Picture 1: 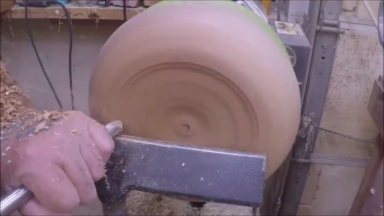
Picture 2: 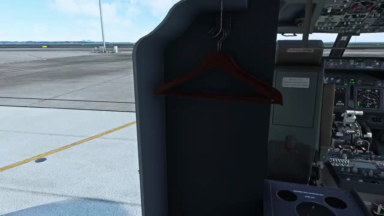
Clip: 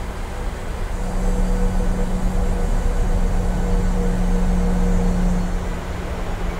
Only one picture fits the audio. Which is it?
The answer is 2